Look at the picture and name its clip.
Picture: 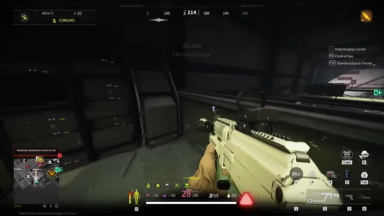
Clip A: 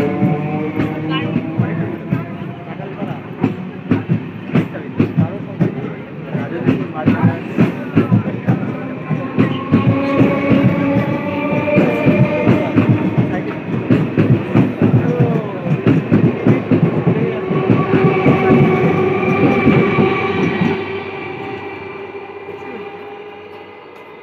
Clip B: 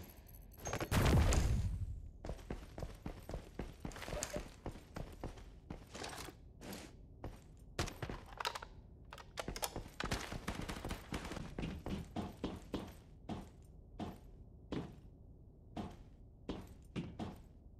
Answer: B